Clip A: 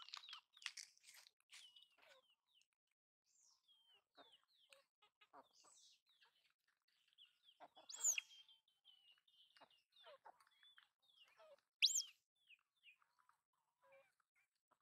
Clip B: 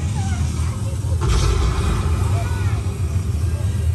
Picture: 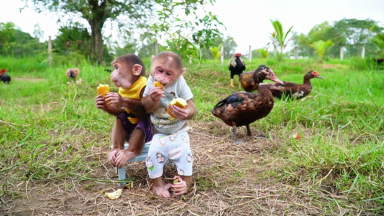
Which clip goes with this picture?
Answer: A